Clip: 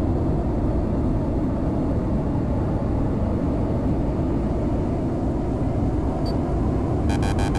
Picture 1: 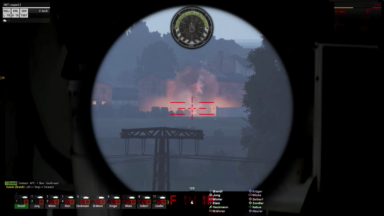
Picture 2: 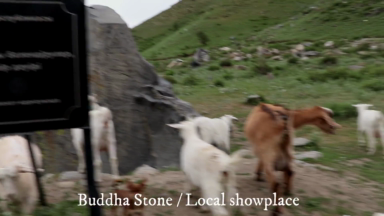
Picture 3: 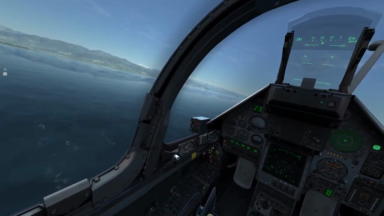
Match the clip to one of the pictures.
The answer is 3